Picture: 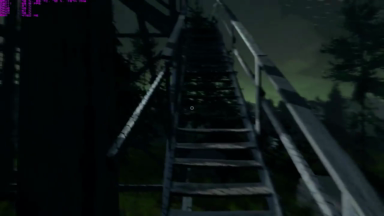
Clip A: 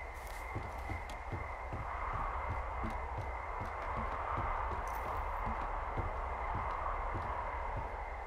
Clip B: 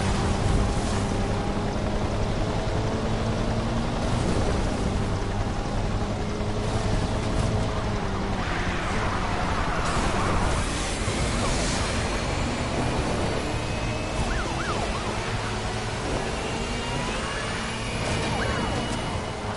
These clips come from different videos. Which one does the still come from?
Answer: A